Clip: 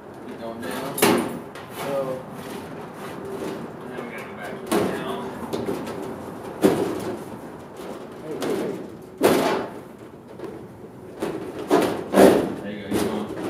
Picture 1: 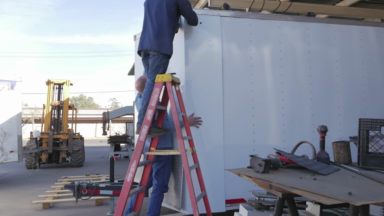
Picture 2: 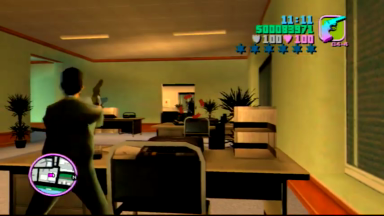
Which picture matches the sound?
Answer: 1